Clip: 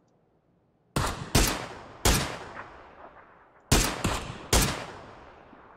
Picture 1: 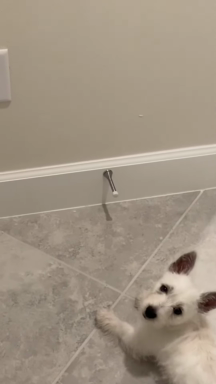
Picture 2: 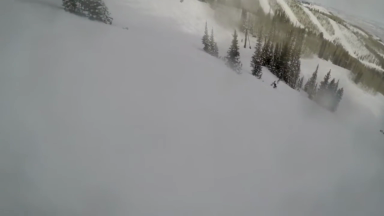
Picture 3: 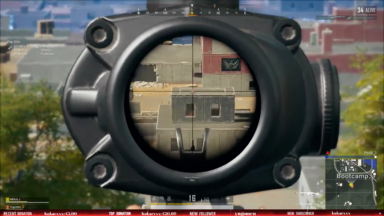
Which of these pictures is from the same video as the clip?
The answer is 3